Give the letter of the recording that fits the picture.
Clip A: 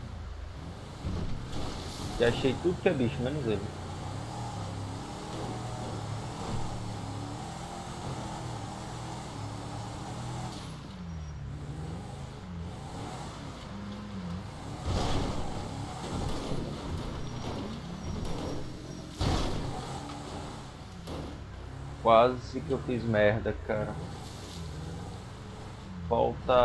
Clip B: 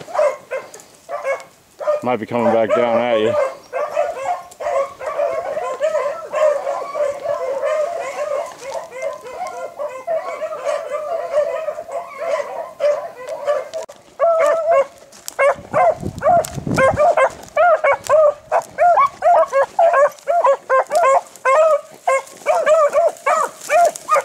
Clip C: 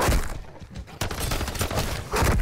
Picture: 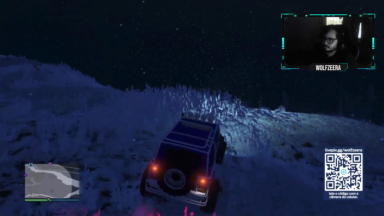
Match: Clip A